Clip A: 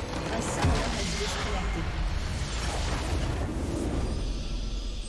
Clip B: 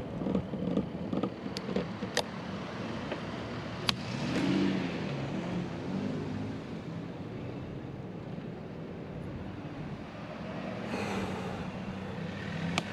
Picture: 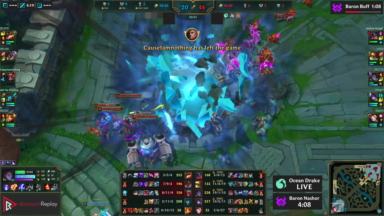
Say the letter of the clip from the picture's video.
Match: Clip A